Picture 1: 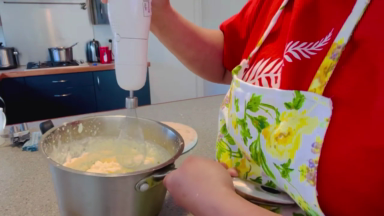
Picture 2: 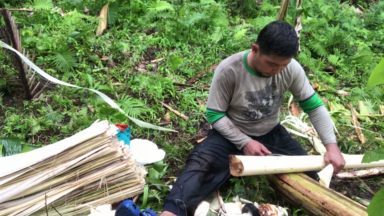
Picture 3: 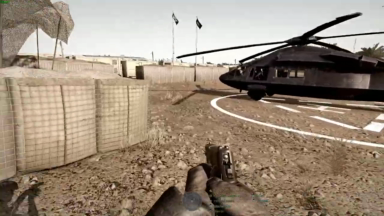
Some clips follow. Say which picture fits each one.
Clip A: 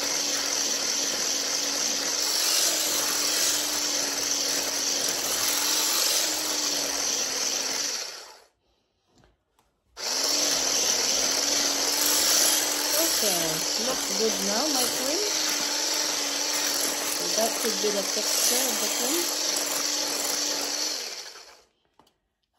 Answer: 1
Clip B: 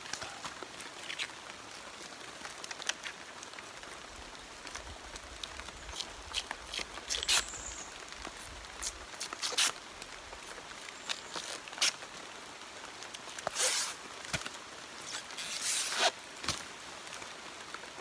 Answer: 2